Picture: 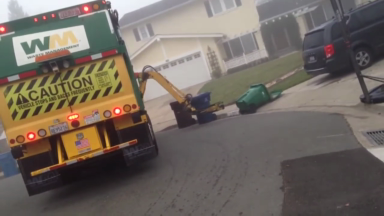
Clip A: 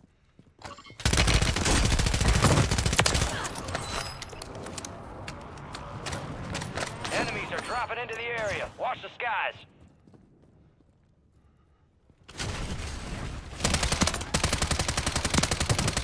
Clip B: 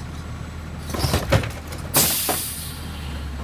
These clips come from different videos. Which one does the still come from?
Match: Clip B